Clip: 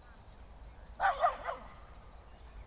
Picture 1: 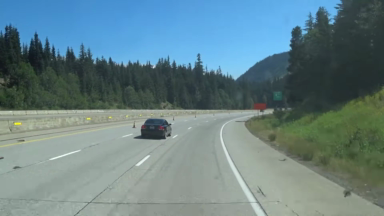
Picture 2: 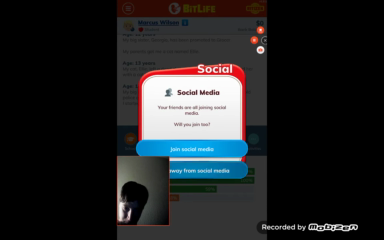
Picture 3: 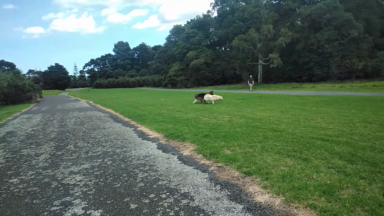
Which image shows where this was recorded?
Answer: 3